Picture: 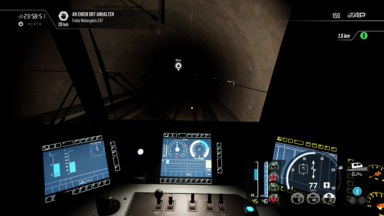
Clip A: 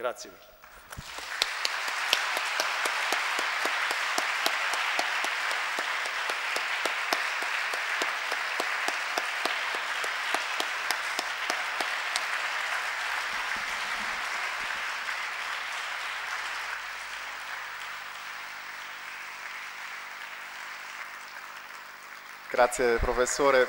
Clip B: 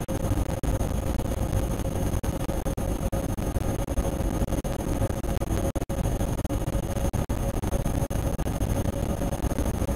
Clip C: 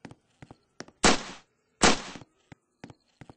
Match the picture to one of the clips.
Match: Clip B